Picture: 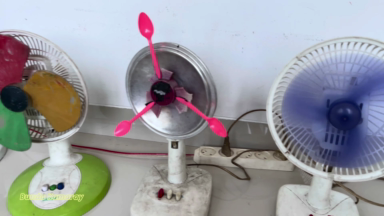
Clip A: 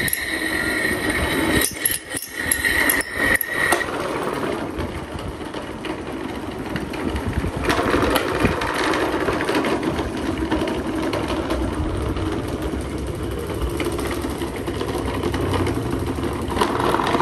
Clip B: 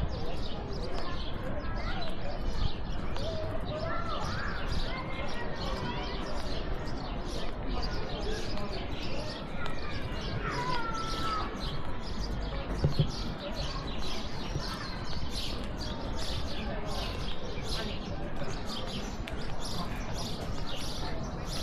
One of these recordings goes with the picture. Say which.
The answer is A